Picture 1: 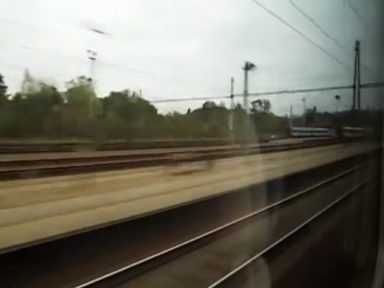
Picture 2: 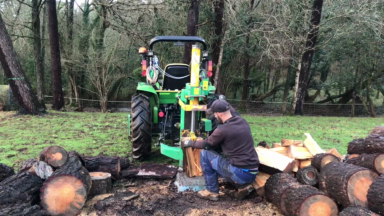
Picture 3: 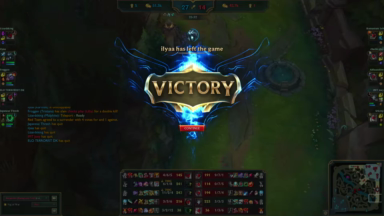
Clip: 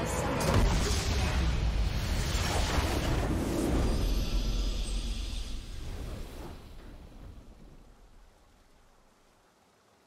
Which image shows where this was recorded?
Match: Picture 3